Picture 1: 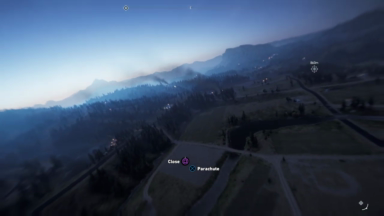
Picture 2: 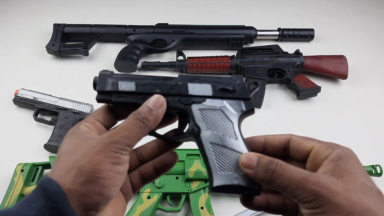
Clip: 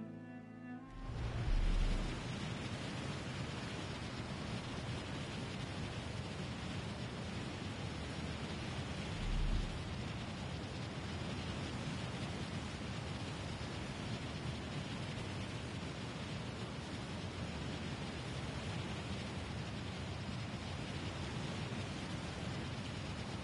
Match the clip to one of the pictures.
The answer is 1